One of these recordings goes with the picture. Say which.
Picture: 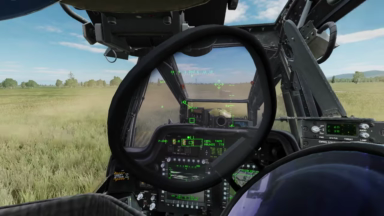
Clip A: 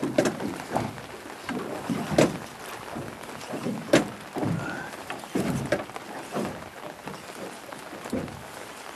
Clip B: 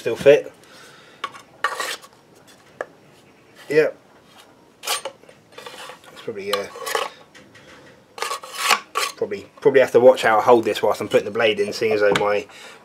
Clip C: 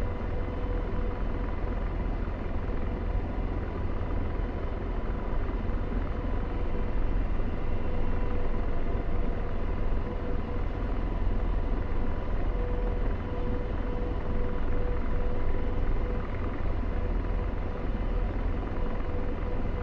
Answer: C